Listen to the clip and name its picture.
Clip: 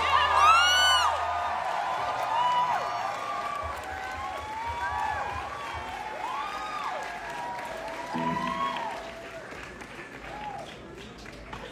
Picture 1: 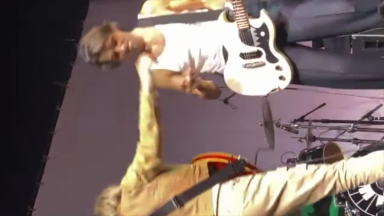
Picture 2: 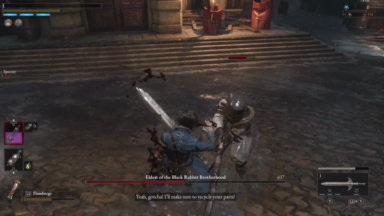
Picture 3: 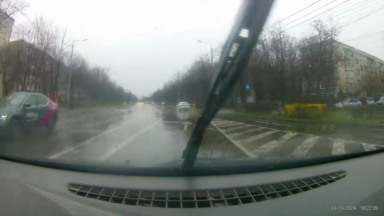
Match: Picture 1